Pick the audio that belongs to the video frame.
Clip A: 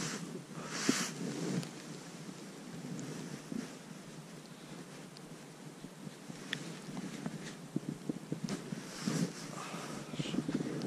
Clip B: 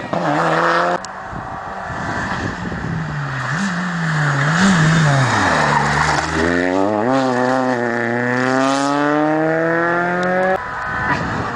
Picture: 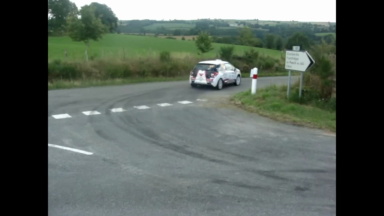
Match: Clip B